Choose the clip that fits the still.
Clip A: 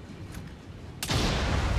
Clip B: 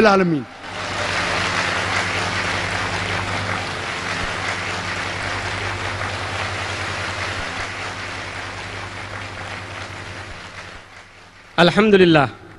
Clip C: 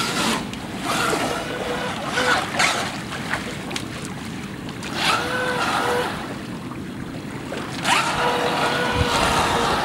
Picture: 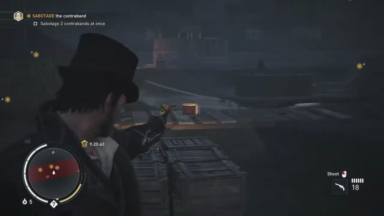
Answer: A